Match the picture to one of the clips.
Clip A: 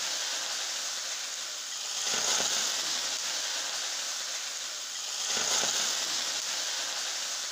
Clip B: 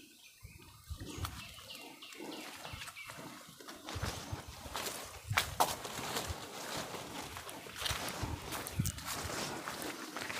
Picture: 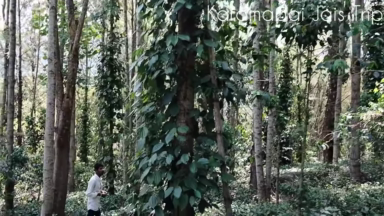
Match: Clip B